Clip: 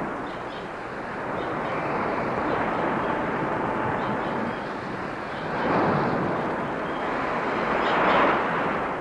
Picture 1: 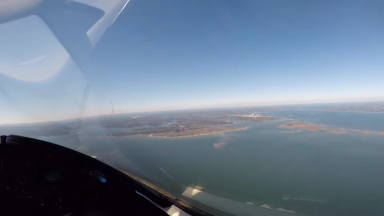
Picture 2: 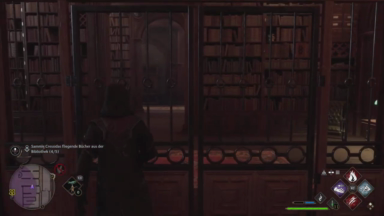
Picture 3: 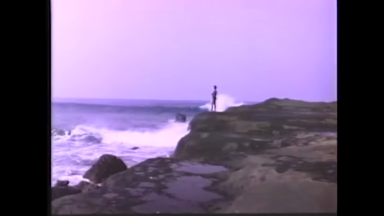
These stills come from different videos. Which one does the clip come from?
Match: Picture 3